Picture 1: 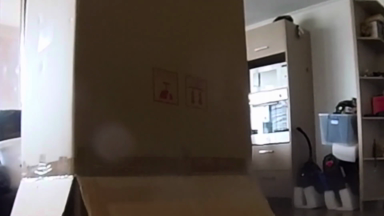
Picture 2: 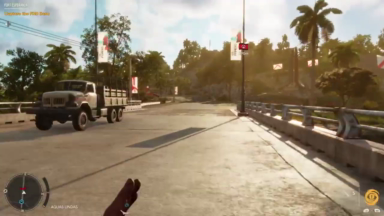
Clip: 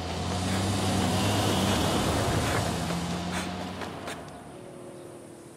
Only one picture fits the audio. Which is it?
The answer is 2